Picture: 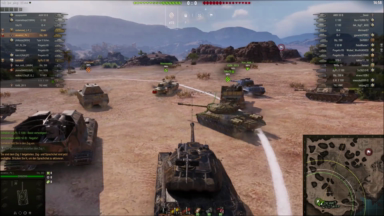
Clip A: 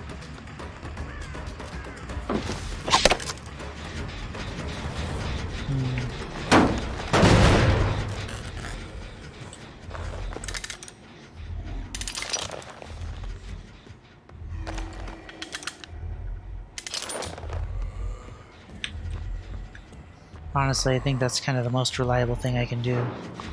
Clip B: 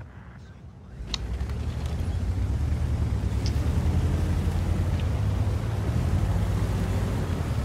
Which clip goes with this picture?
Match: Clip B